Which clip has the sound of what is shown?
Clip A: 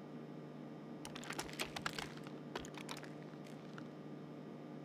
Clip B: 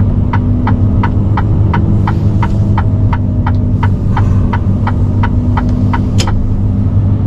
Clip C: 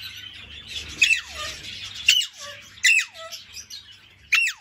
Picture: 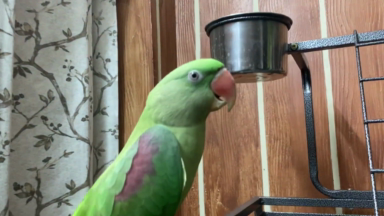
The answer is C